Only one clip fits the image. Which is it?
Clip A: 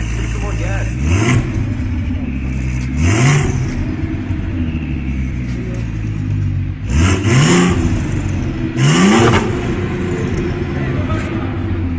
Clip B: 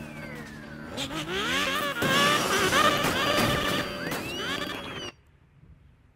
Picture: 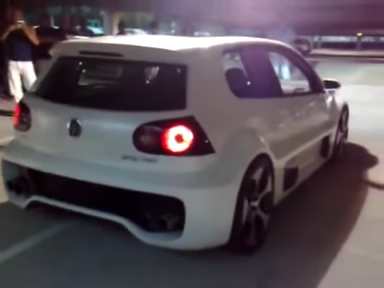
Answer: A